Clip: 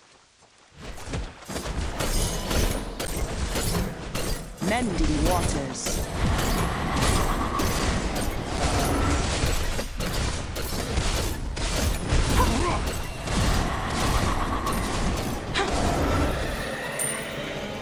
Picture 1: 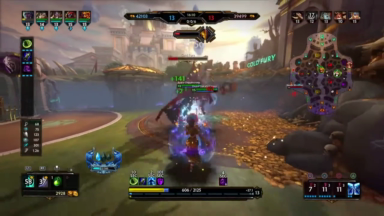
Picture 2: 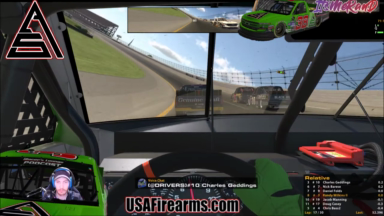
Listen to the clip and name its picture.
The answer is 1